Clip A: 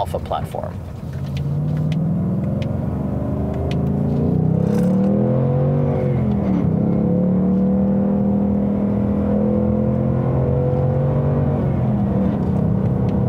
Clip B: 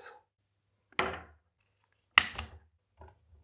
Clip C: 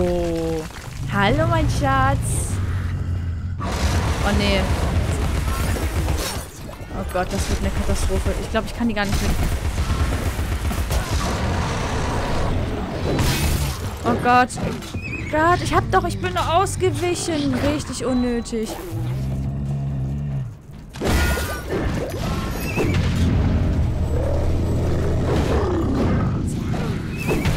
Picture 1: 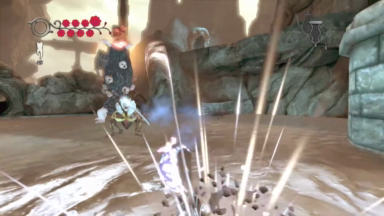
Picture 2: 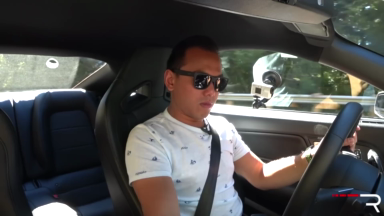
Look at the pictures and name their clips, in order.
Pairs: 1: C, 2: A